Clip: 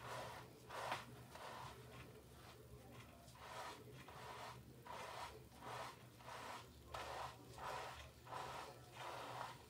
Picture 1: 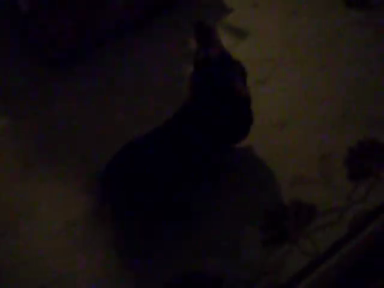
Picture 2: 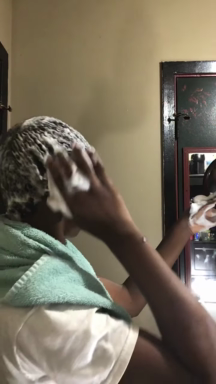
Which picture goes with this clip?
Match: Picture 2